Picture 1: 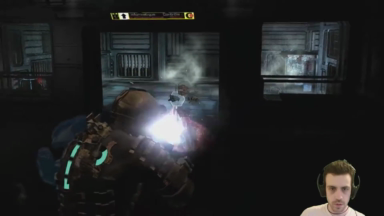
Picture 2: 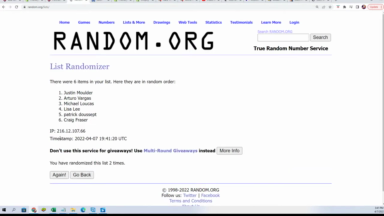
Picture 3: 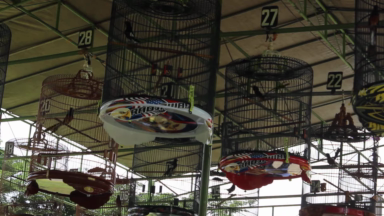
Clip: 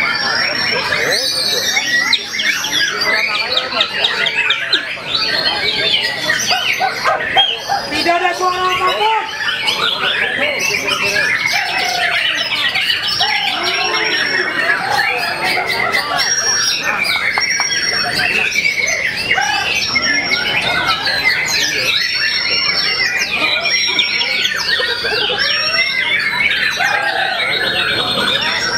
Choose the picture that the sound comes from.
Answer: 3